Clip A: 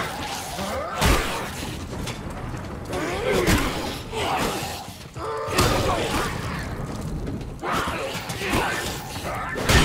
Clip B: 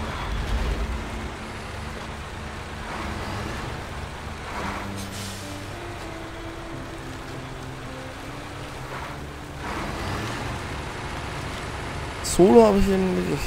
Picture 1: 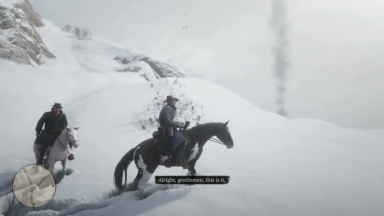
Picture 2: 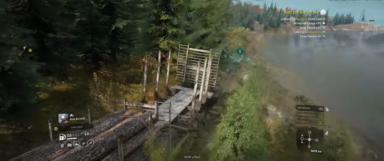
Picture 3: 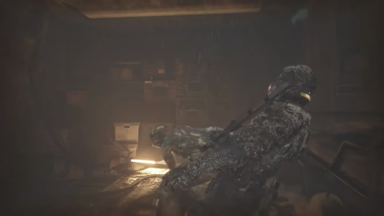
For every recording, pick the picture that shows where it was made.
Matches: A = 3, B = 2